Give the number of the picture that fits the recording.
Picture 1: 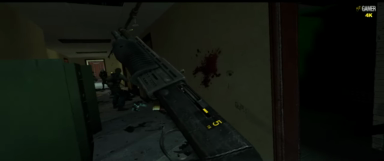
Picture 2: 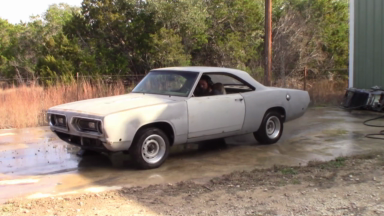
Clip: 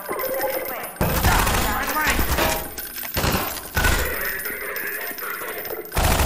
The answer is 1